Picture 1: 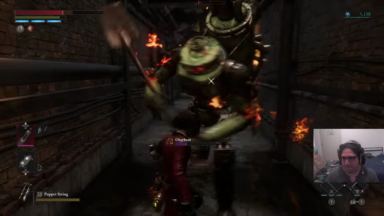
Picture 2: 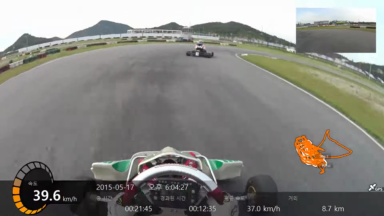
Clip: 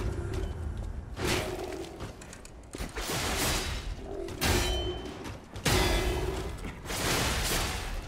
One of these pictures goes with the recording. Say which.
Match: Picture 1